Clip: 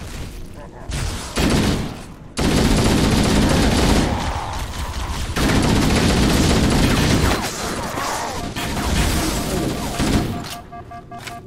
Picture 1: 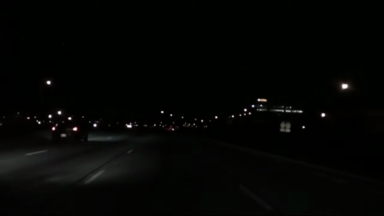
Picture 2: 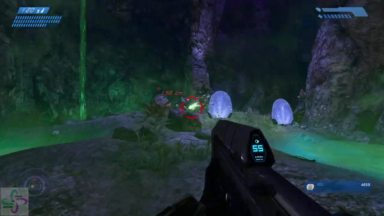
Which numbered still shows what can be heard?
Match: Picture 2